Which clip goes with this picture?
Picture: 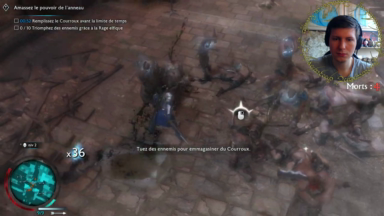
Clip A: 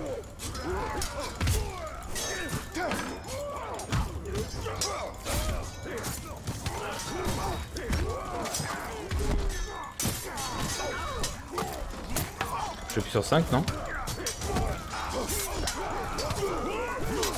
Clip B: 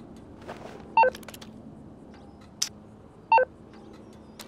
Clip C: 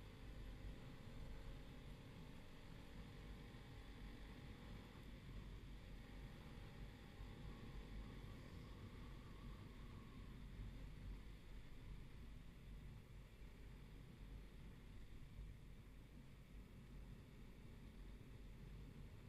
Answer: A